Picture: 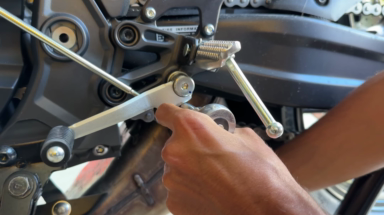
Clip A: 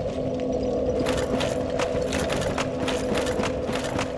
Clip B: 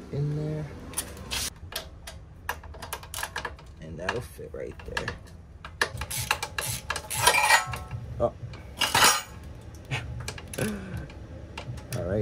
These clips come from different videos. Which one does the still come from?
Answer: B